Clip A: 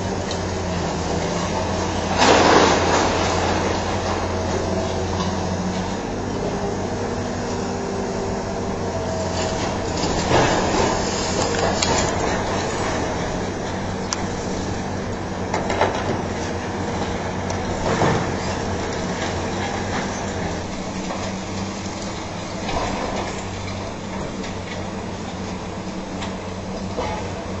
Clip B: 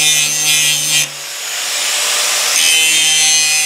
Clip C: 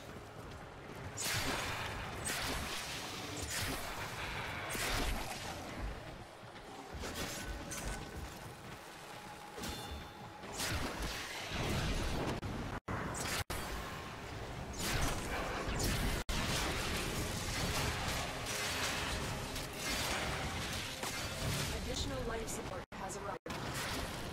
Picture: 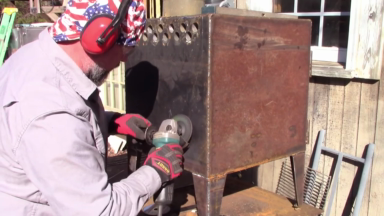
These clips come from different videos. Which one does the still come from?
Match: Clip B